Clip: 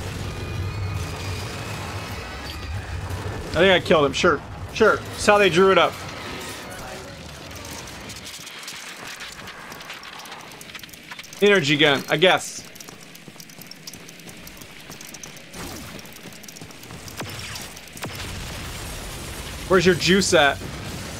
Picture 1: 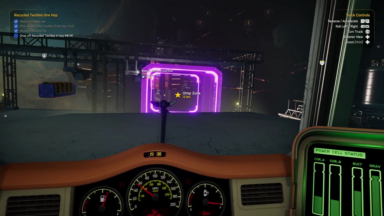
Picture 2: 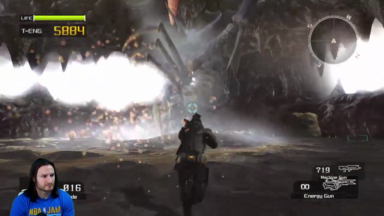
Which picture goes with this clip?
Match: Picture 2